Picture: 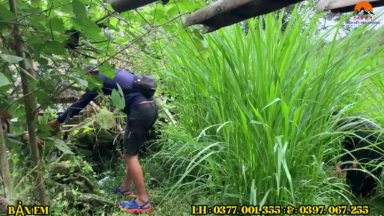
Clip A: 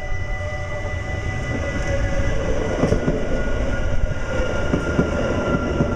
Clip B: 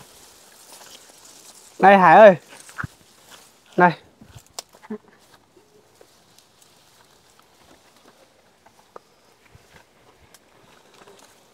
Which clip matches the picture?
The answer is B